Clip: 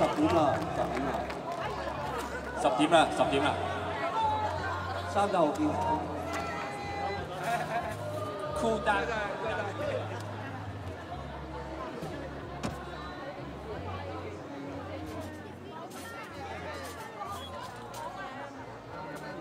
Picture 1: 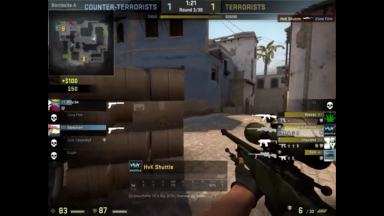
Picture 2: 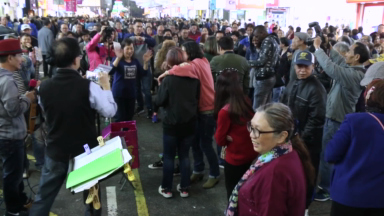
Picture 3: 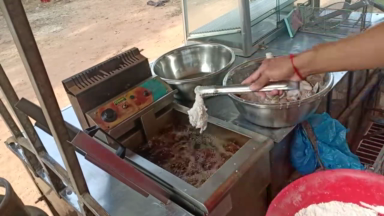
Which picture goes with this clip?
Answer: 2